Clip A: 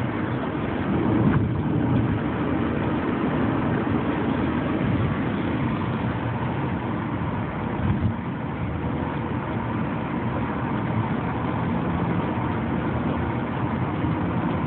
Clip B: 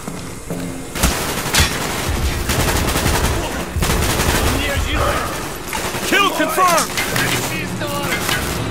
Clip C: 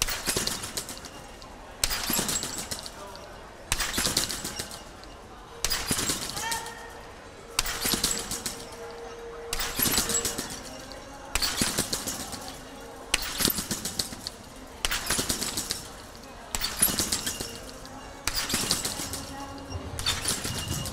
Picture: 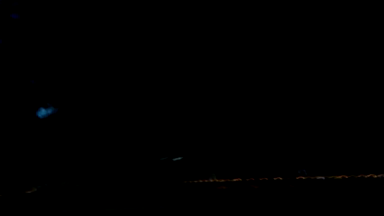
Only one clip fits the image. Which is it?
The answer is A